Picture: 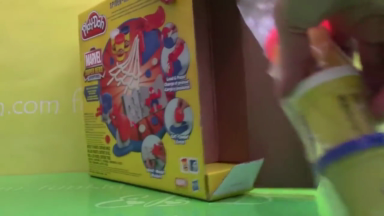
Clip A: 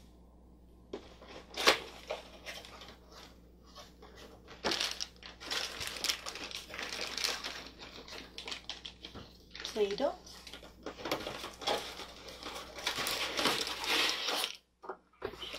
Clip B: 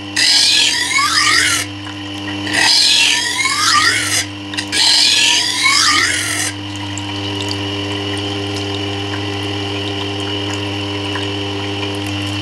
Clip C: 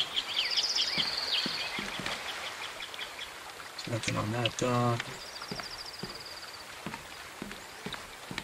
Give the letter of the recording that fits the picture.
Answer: A